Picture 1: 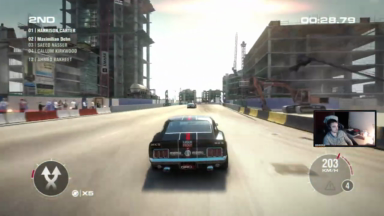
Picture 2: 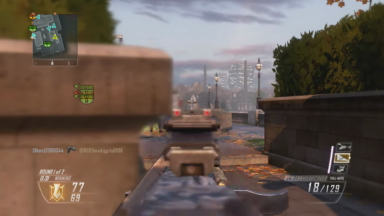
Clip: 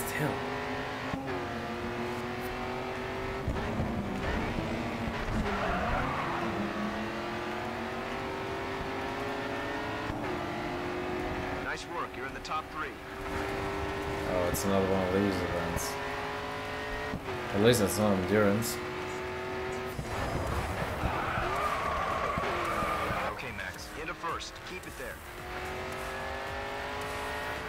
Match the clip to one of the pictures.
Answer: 1